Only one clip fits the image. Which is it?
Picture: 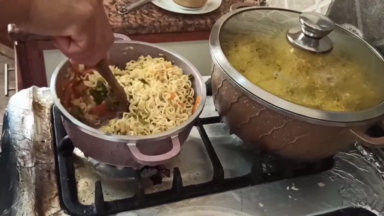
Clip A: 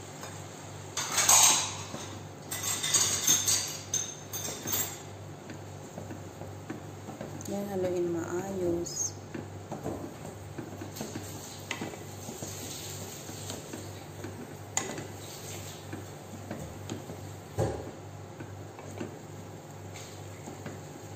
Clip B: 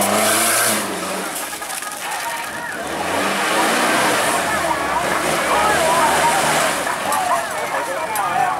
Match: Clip A